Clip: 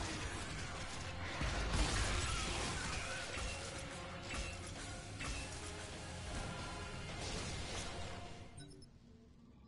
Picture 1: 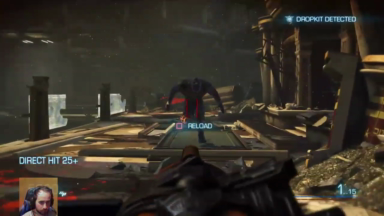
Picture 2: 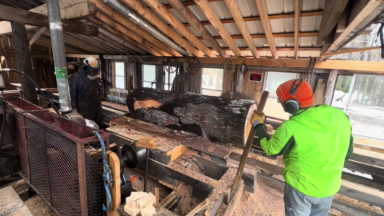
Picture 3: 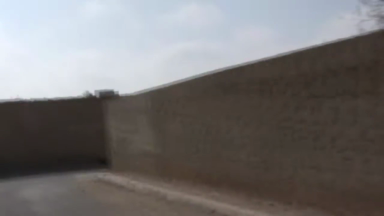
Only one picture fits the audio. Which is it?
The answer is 1